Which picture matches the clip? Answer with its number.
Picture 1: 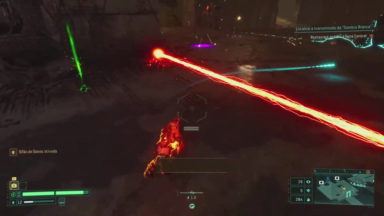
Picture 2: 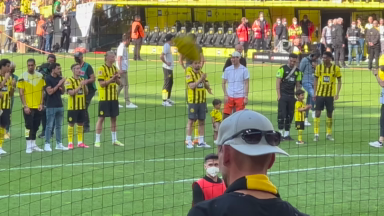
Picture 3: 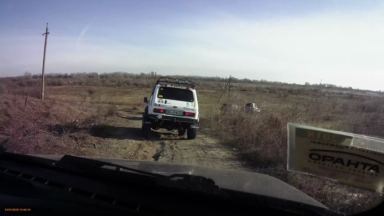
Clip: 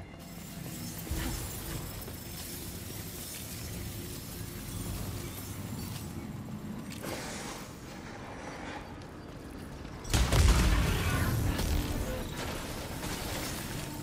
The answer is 1